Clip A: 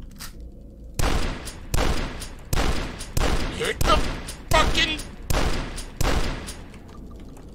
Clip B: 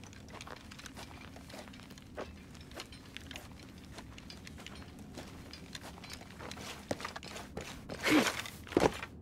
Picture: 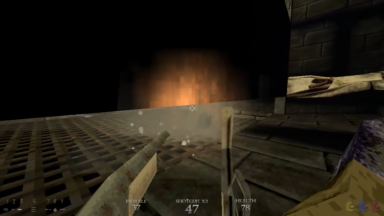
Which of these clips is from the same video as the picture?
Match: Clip A